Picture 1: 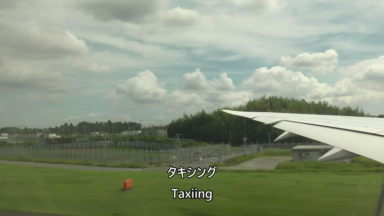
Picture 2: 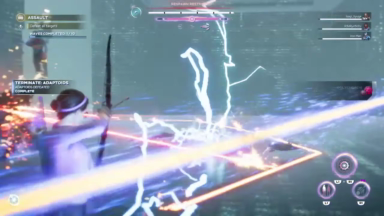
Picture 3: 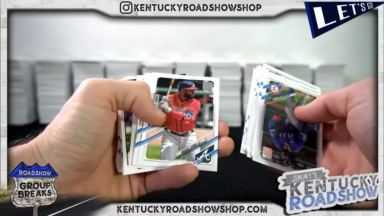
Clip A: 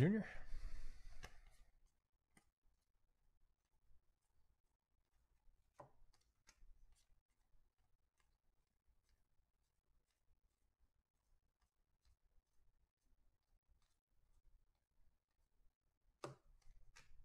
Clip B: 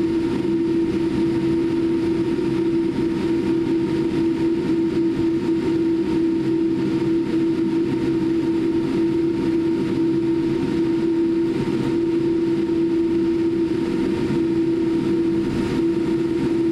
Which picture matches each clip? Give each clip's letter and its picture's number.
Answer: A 3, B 1